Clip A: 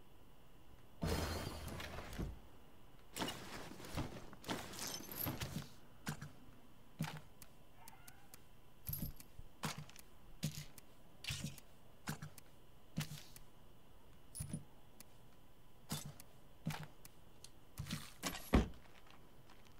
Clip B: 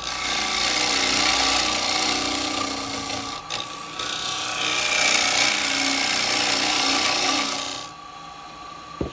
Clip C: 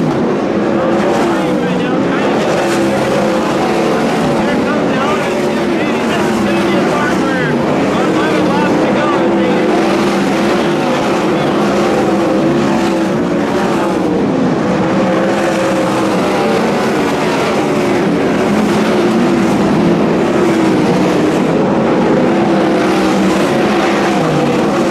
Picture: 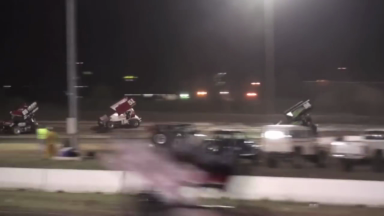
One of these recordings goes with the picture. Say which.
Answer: C